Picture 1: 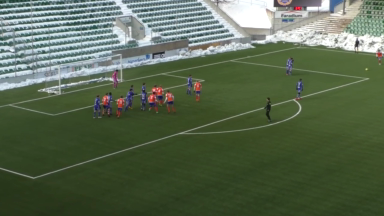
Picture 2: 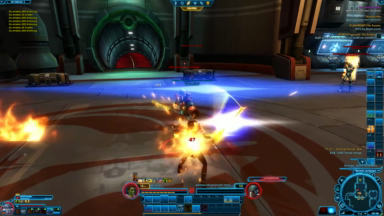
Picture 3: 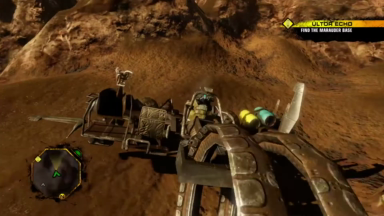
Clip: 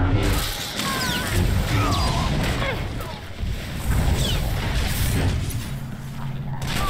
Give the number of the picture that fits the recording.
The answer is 2